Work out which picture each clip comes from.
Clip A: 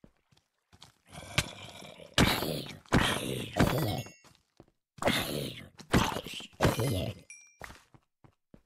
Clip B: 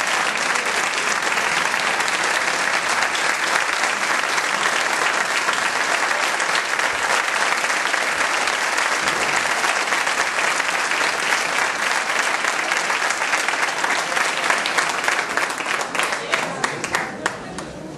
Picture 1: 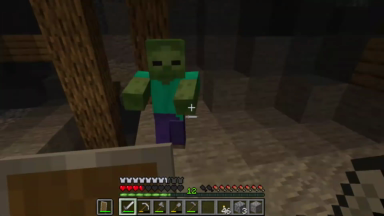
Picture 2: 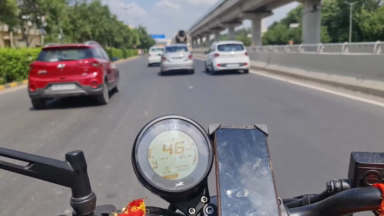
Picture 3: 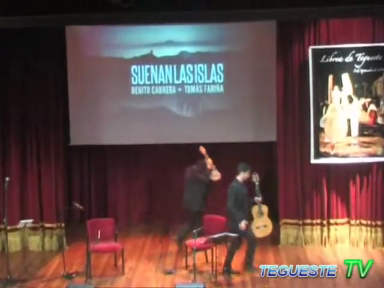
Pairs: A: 1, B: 3